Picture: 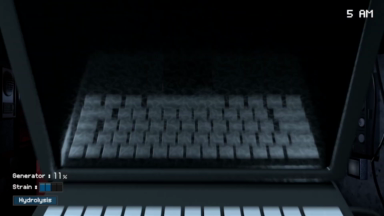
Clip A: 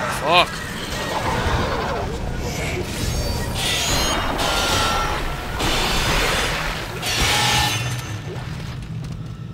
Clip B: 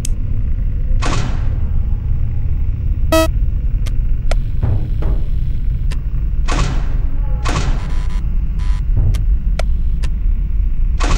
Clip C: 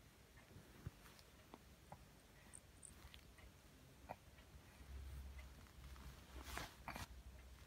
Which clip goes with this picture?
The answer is B